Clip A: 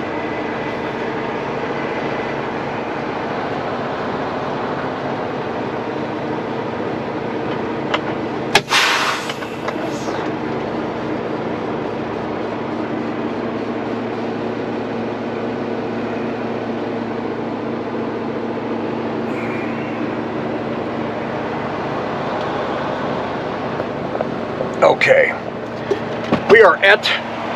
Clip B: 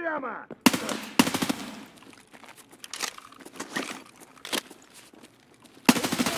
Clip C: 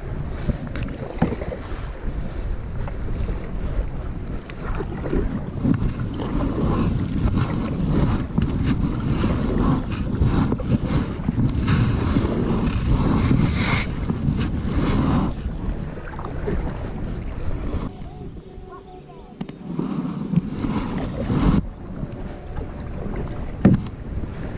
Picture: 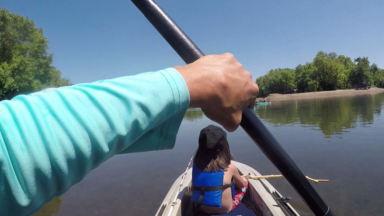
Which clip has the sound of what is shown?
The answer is C